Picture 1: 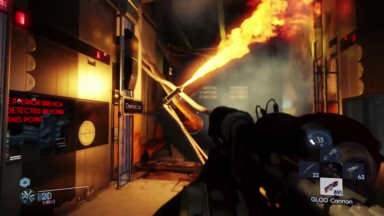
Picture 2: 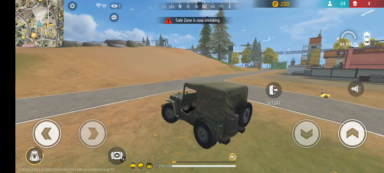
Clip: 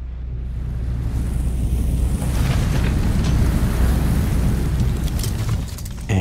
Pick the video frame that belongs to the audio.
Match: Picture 1